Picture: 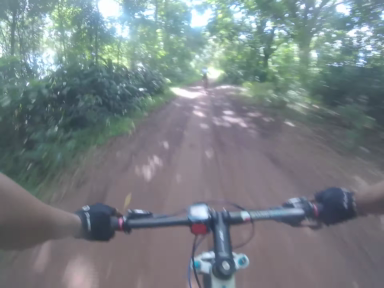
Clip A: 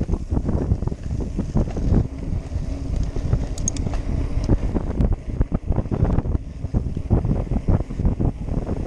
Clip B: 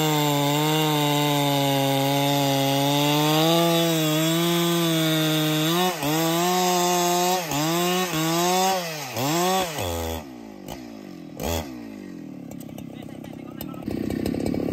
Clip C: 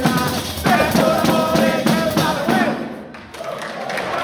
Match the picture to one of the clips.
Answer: A